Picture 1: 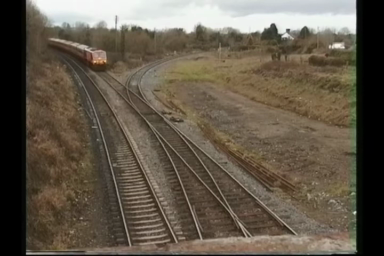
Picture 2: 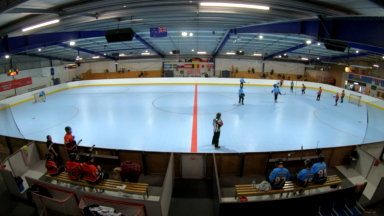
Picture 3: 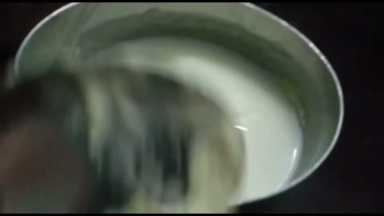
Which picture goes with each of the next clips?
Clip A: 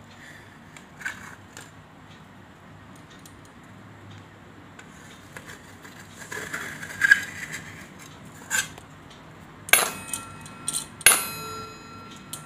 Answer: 3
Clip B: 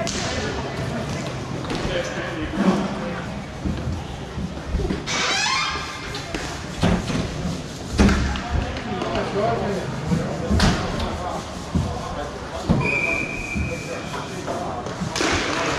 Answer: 2